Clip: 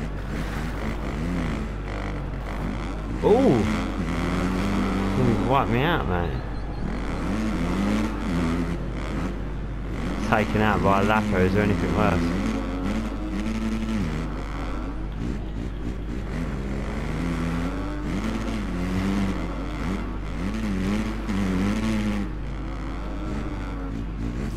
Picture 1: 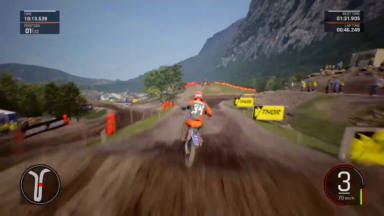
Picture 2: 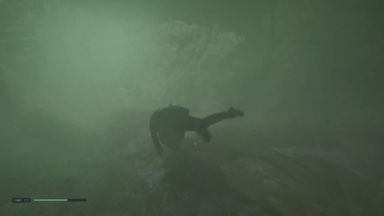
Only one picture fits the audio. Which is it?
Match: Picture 1